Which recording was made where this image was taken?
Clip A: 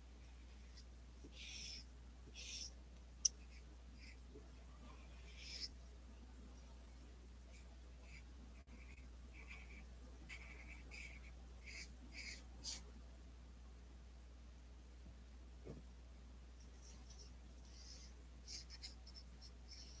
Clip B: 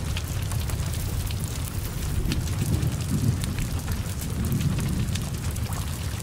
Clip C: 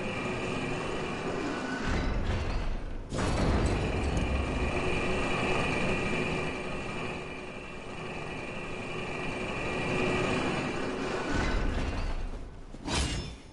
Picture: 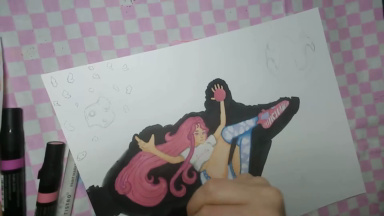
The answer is A